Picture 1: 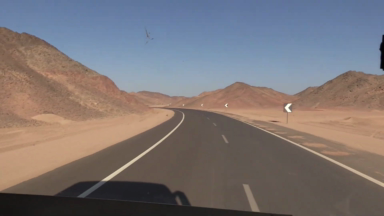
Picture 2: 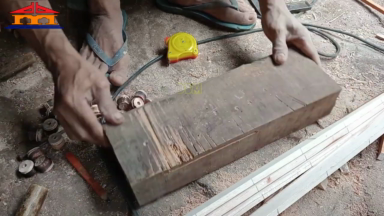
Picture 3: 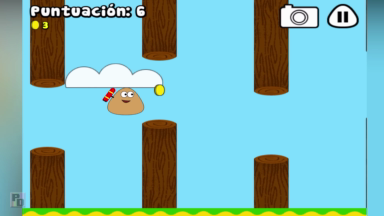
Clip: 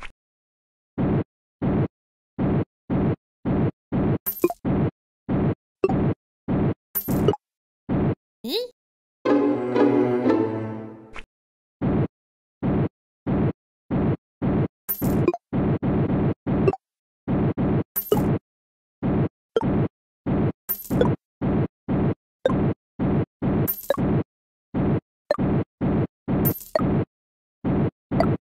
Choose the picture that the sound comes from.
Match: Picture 3